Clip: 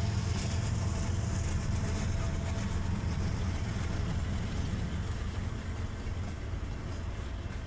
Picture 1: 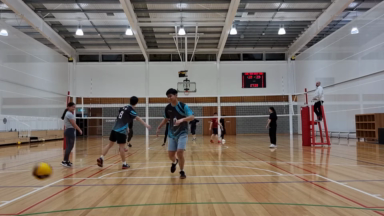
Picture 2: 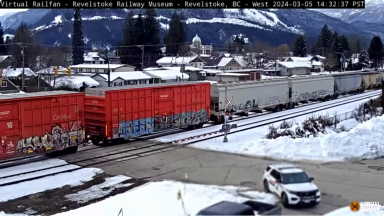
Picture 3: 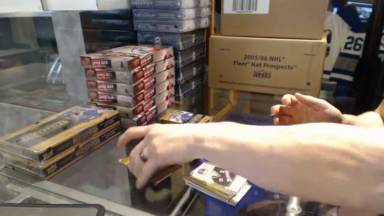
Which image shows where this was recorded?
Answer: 2